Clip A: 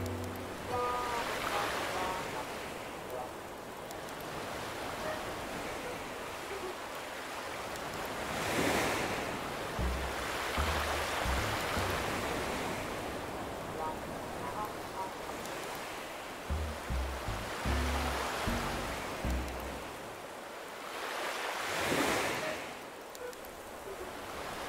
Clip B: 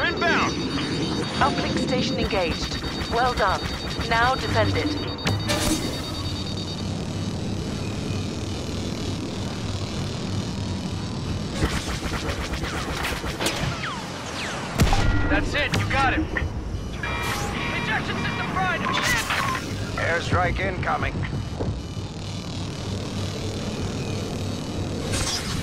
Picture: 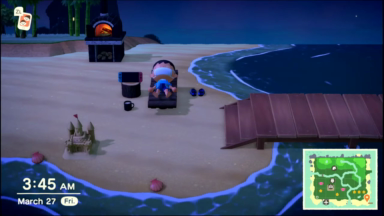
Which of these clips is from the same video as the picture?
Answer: A